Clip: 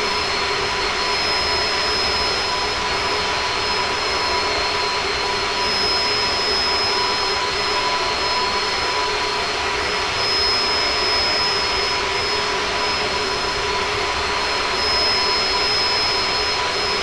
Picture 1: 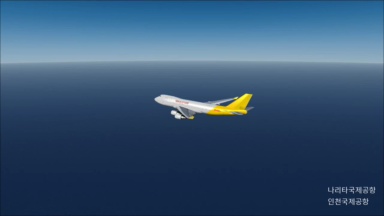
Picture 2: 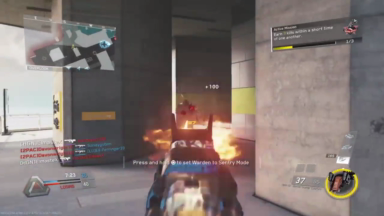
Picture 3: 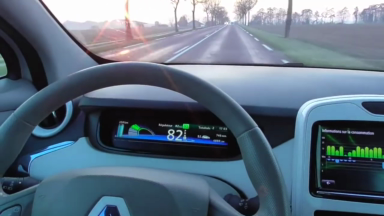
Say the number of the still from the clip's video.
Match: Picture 1